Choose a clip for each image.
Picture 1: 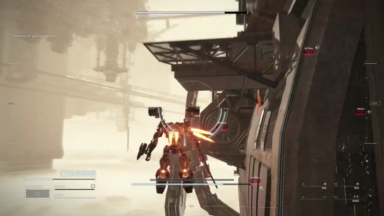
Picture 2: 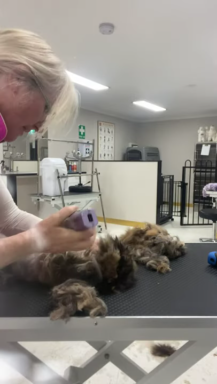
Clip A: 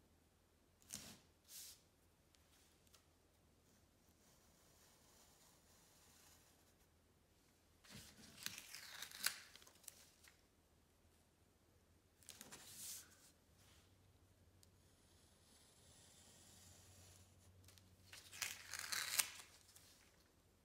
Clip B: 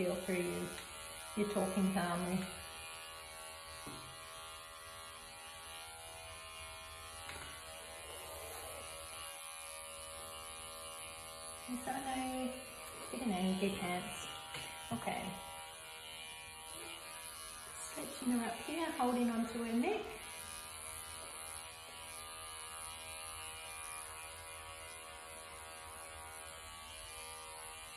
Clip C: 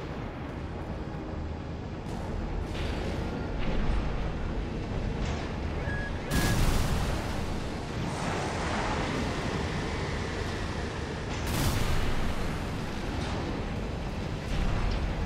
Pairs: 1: C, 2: B